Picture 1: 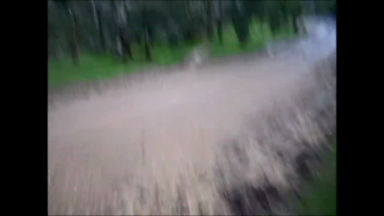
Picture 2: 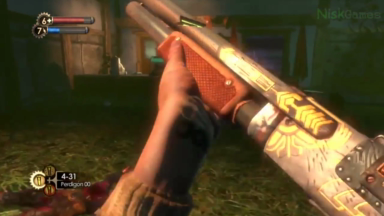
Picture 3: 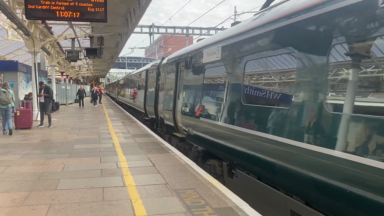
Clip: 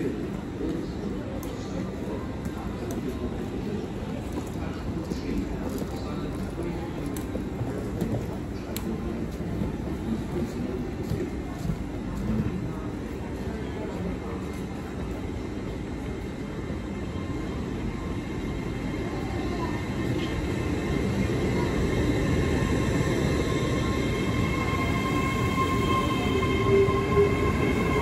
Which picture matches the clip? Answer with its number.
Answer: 3